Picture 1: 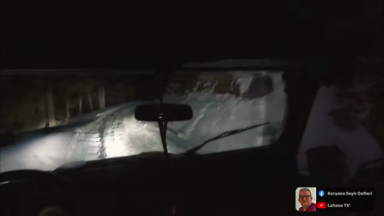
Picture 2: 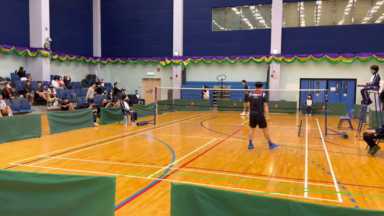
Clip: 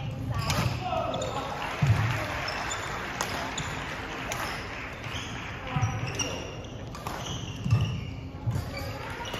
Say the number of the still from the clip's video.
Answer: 2